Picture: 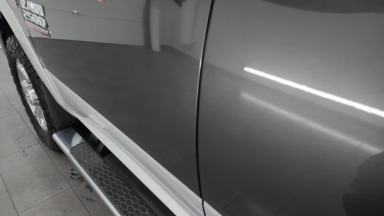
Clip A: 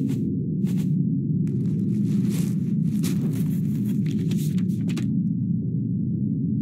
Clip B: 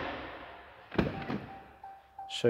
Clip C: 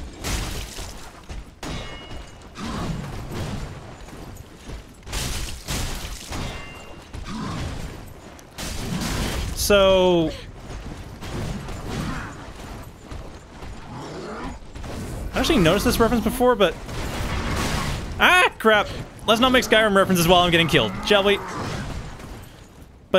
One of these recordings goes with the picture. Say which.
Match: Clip B